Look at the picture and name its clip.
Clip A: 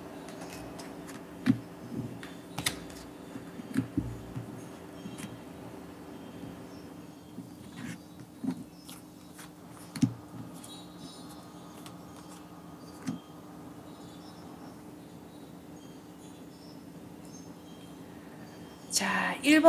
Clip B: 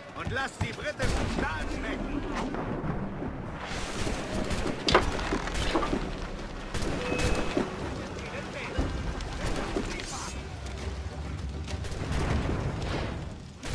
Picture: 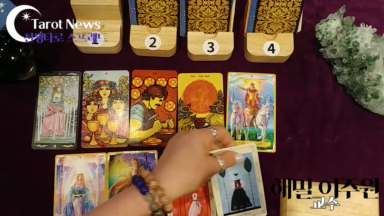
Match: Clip A